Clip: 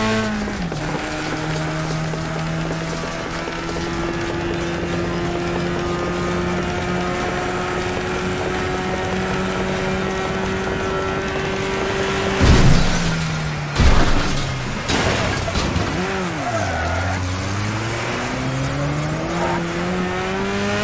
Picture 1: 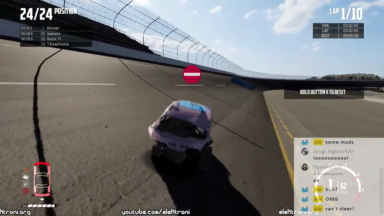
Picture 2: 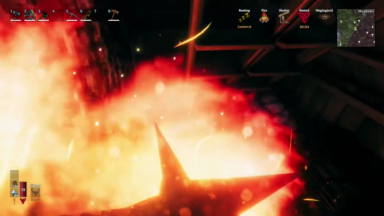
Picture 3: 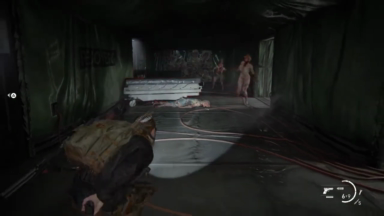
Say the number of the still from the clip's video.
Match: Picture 1